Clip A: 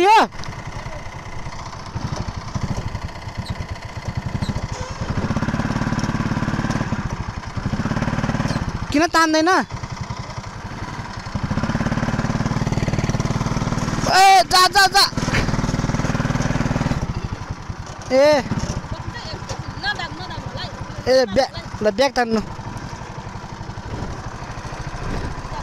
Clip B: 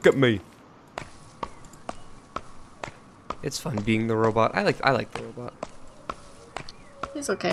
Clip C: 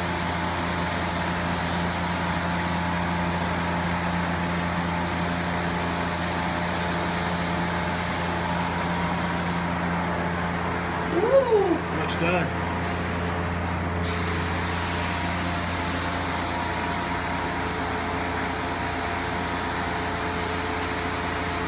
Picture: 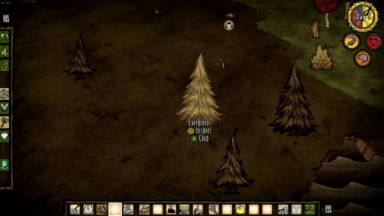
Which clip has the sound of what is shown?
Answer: B